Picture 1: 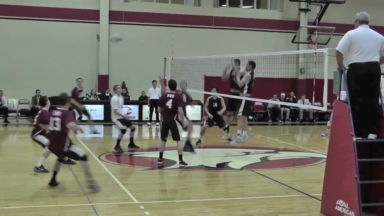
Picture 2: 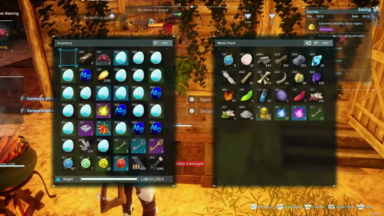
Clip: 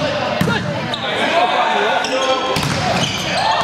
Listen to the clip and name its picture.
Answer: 1